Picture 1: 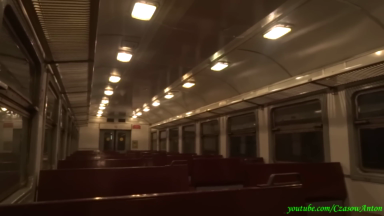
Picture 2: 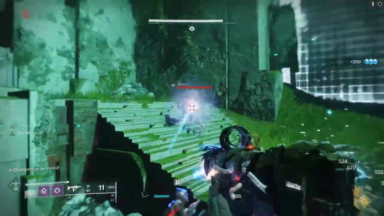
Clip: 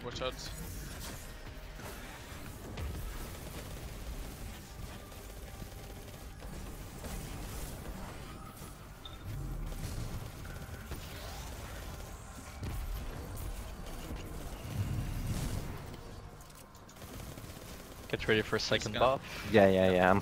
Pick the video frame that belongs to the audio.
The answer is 2